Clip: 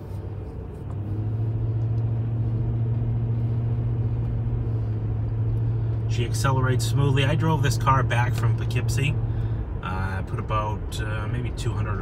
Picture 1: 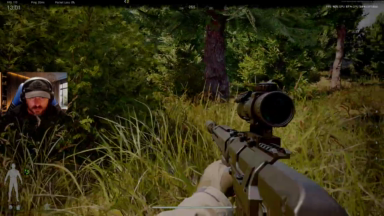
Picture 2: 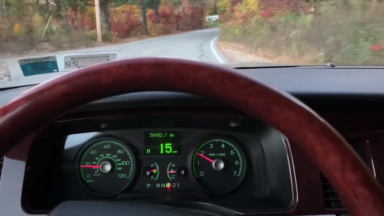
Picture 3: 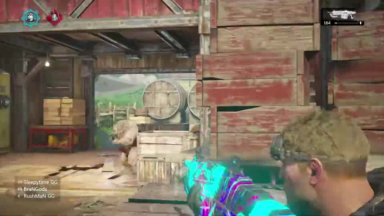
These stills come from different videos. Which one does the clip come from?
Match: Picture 2